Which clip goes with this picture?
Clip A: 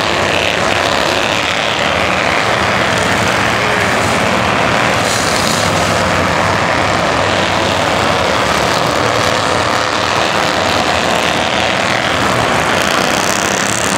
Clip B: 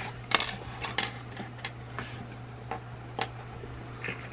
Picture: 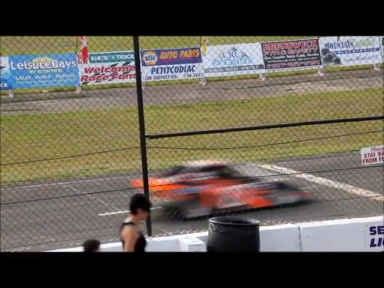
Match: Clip A